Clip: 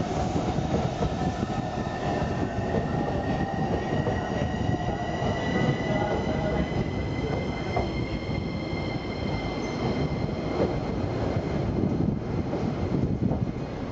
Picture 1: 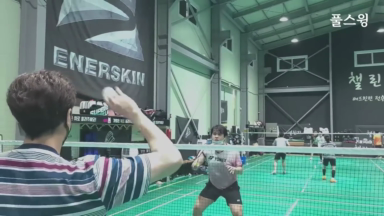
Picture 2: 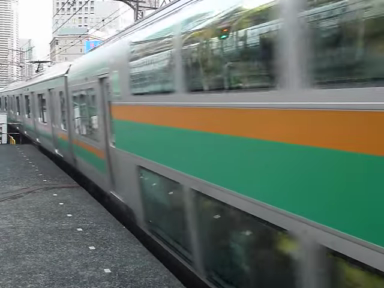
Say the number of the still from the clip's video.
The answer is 2